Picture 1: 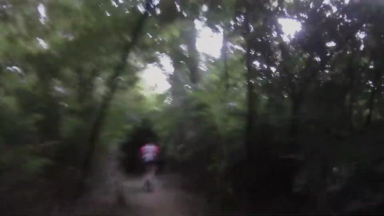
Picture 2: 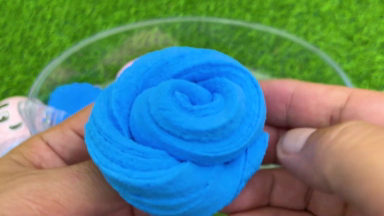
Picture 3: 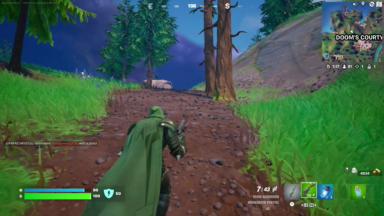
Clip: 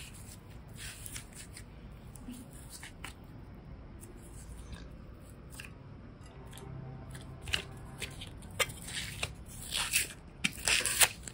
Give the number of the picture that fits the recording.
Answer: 2